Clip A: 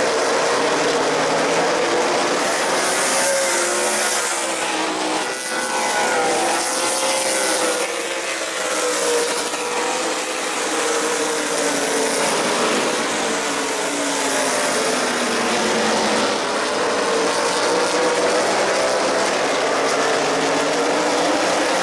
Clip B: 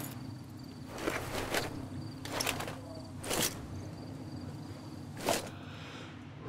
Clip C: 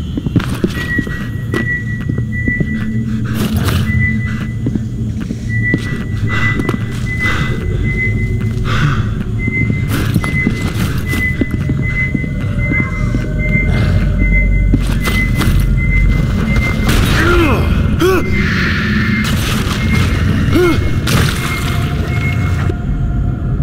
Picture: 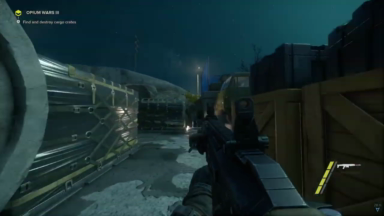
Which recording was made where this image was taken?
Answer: B